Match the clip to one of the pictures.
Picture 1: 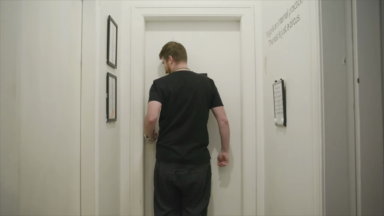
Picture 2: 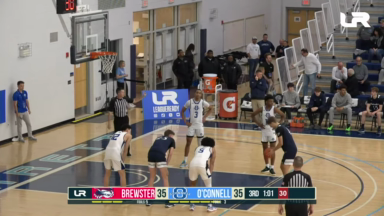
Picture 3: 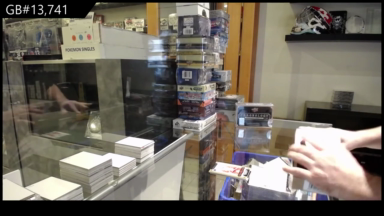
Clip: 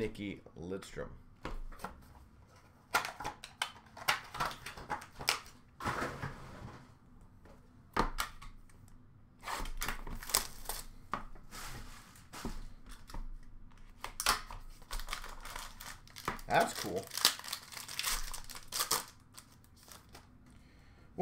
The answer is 3